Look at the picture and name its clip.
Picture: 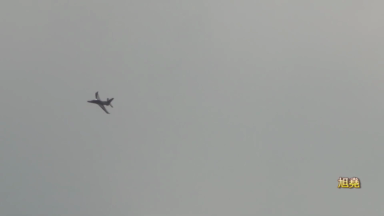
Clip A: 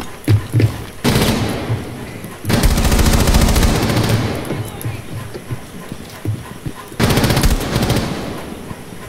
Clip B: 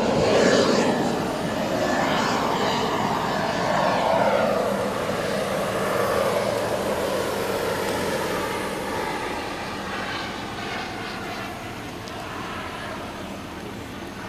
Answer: B